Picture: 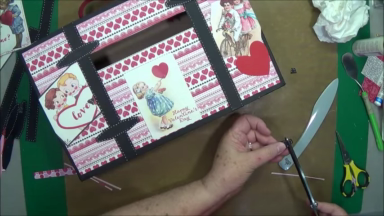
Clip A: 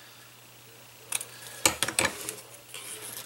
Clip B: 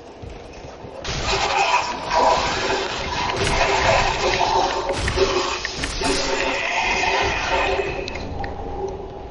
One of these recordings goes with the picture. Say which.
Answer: A